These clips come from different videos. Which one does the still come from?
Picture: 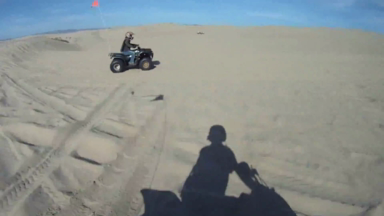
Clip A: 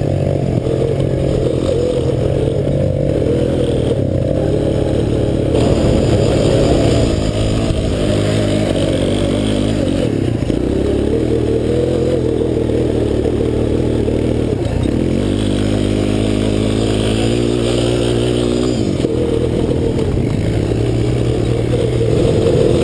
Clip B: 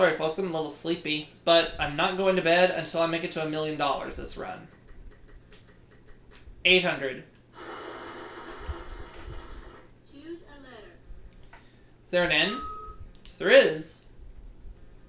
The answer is A